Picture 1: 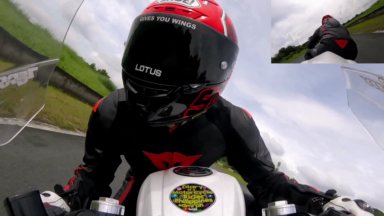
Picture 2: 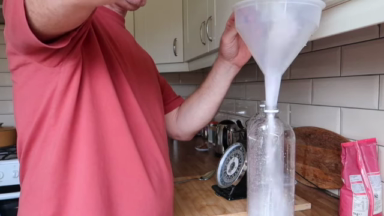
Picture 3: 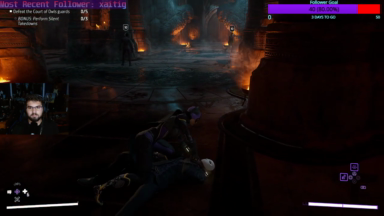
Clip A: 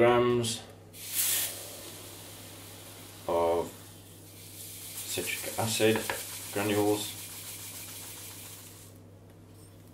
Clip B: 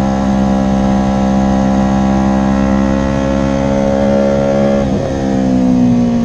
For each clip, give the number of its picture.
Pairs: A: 2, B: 1